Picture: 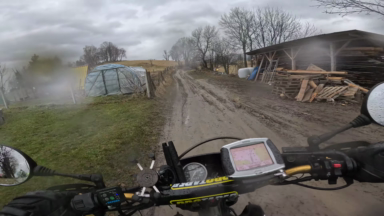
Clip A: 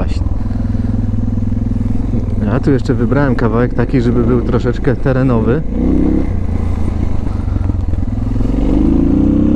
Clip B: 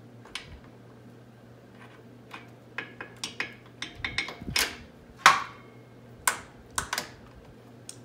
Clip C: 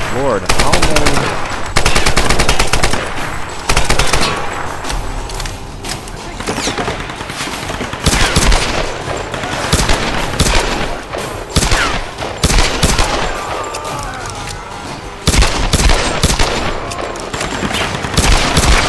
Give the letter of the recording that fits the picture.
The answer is A